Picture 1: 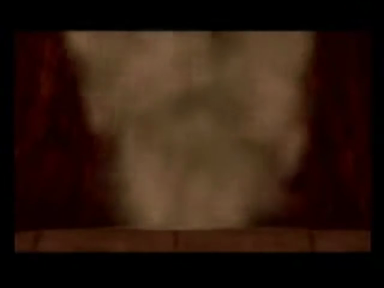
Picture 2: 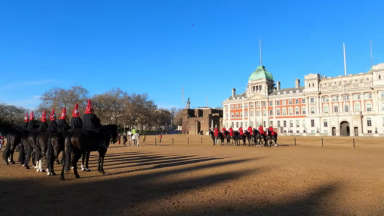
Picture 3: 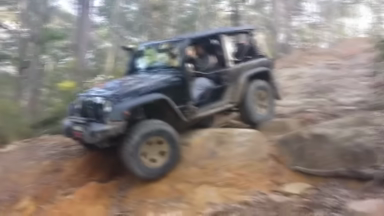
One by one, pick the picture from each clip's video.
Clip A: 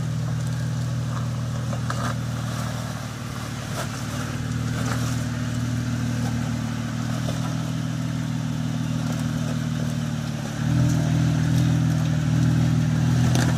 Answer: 3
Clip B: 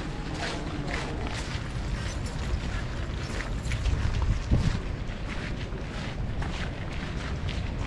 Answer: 2